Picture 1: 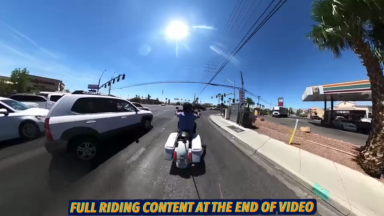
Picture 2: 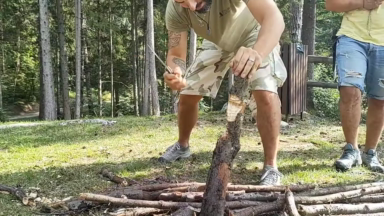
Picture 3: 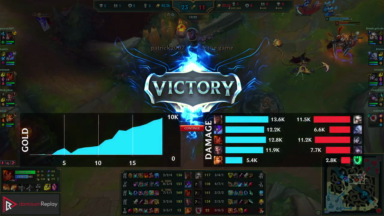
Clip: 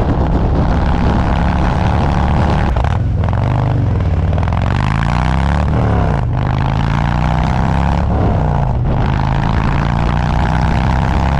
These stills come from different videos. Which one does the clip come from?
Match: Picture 1